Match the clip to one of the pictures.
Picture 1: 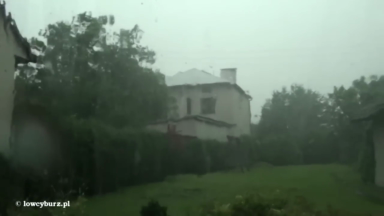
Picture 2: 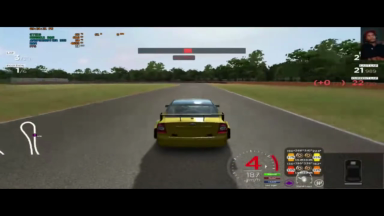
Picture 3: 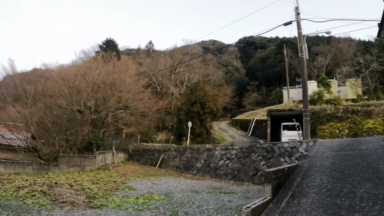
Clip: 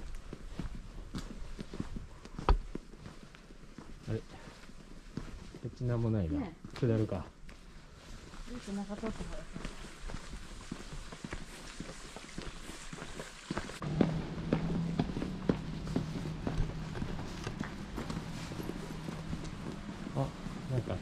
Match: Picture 3